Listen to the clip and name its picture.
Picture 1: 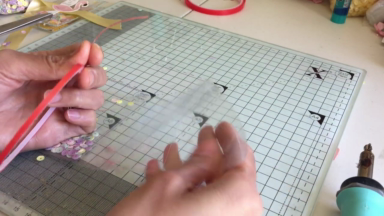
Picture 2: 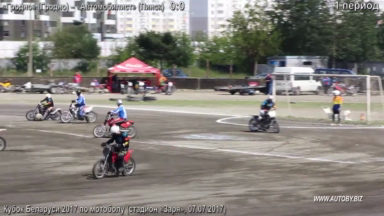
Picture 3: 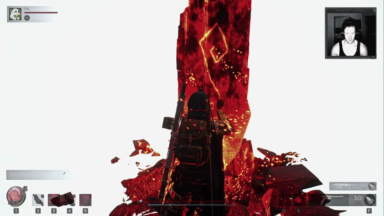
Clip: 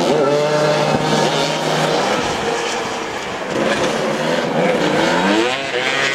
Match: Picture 2